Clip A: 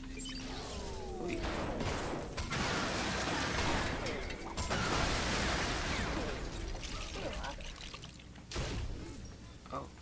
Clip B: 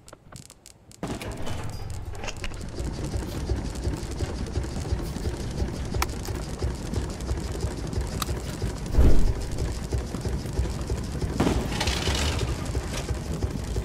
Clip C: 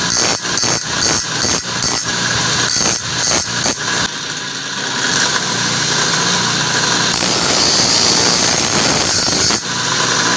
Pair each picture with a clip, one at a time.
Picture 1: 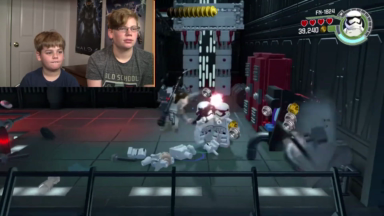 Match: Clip A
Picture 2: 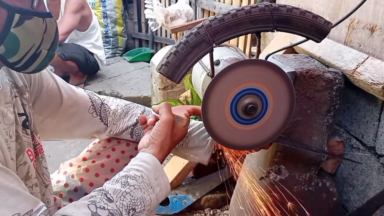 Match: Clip C